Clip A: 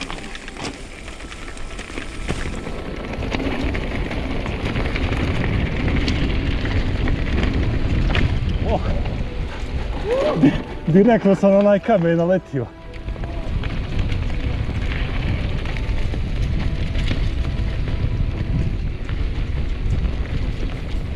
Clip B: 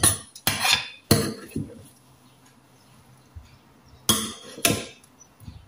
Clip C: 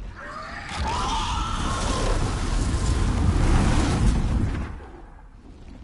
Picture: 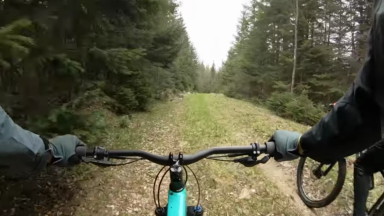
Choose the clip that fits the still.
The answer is A